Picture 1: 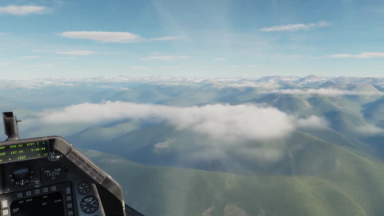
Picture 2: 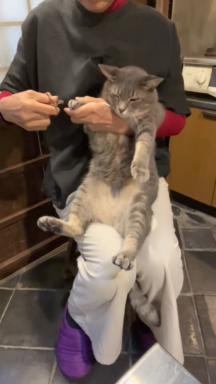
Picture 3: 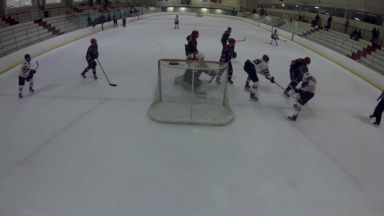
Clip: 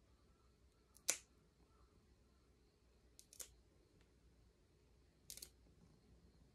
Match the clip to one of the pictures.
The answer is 2